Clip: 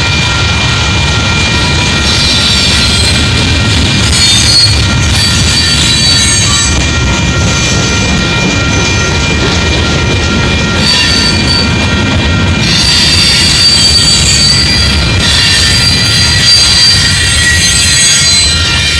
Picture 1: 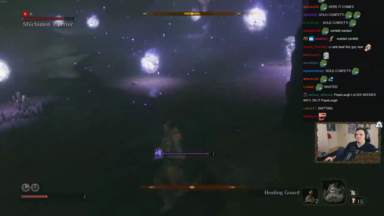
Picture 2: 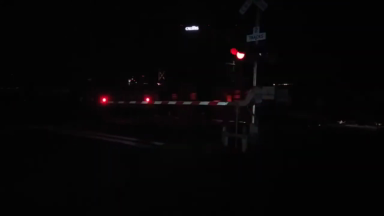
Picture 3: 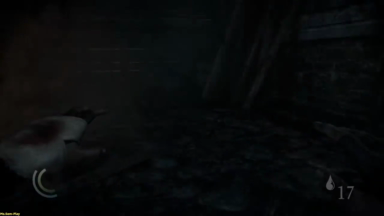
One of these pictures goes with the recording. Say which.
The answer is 2